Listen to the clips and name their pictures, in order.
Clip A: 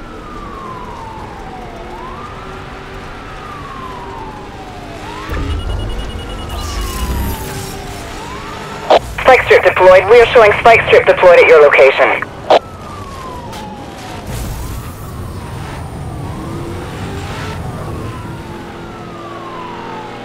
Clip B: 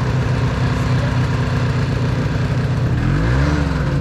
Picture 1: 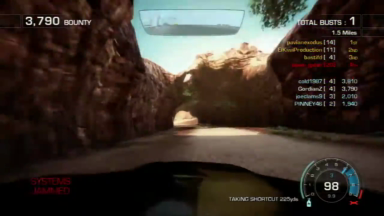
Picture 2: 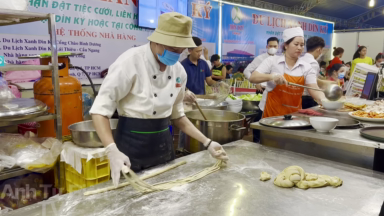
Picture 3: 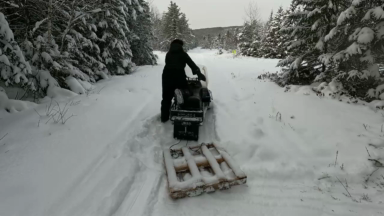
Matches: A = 1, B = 3